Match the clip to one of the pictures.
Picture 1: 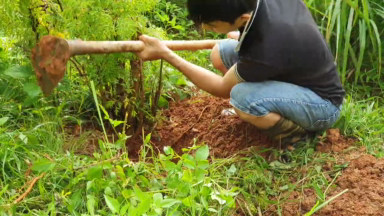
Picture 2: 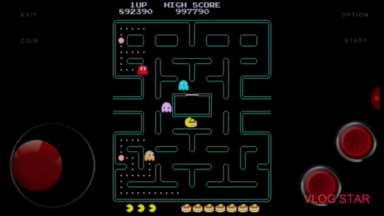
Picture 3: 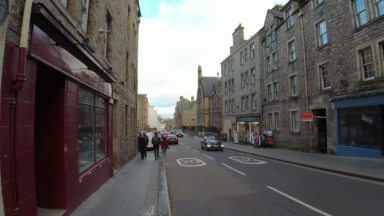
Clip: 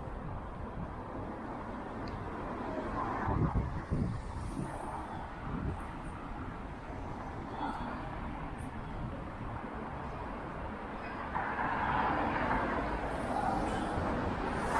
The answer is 3